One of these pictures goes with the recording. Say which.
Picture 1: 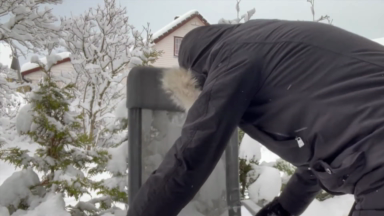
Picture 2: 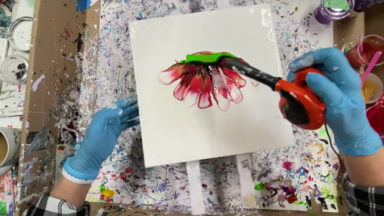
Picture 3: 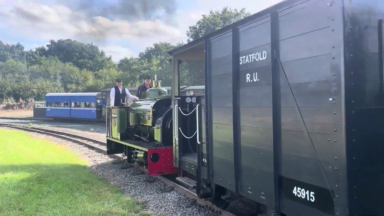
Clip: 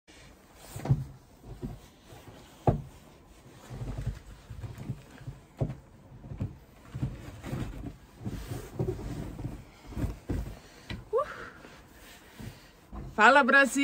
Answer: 1